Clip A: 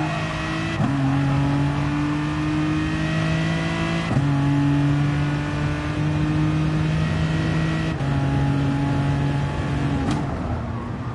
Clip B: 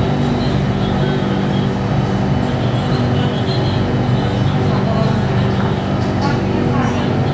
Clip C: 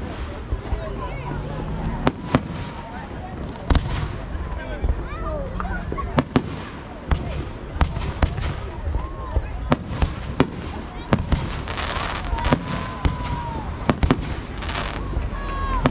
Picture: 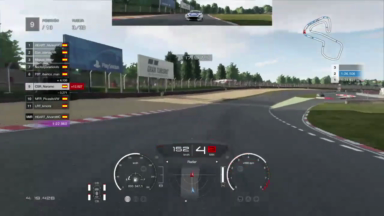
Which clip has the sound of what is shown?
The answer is A